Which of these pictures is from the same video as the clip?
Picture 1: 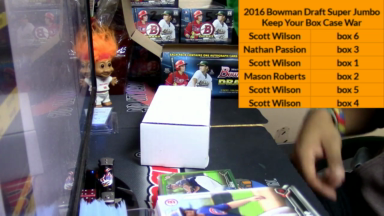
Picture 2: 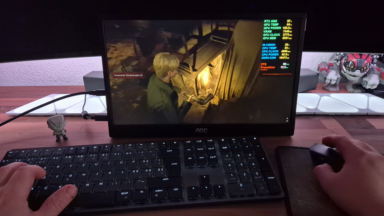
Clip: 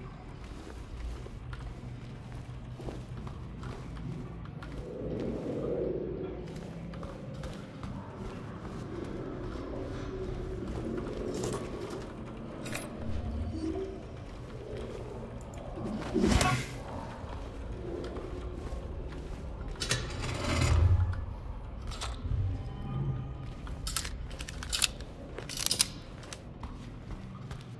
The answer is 2